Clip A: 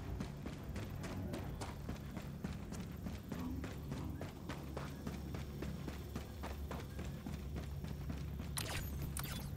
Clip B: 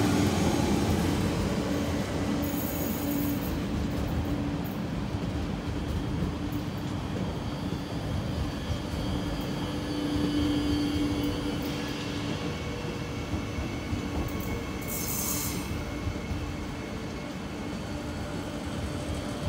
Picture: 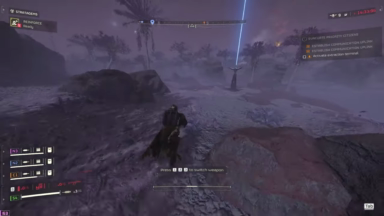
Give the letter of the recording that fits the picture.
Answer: A